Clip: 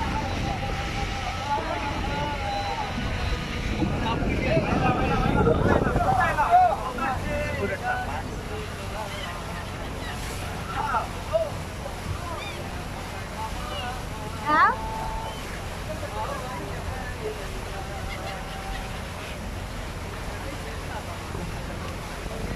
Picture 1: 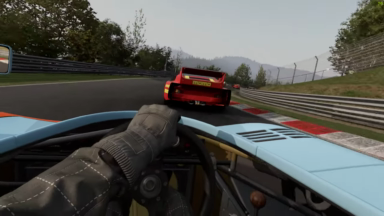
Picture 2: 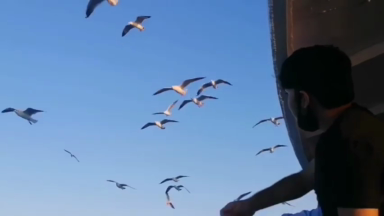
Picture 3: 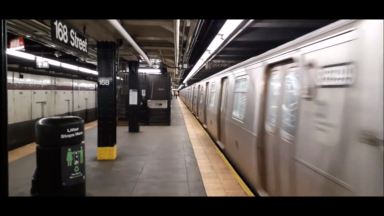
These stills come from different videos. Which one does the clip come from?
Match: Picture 2